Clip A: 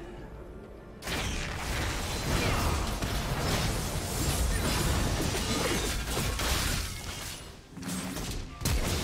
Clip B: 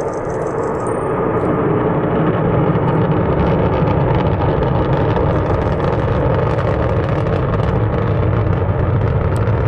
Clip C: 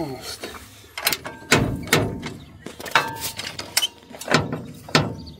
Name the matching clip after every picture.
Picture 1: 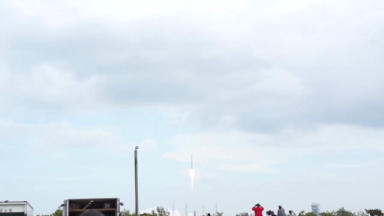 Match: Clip B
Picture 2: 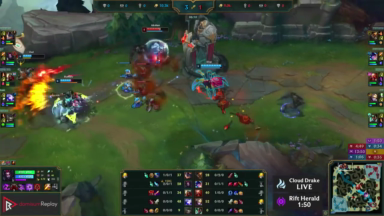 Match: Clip A